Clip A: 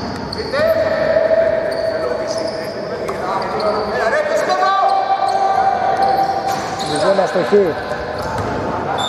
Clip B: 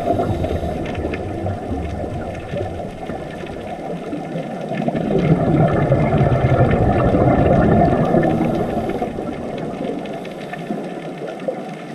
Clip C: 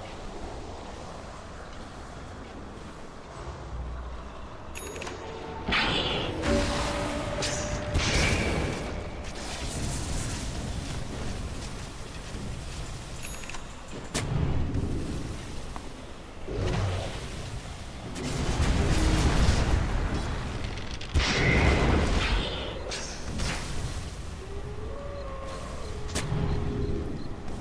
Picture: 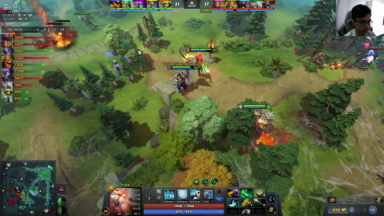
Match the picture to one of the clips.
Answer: C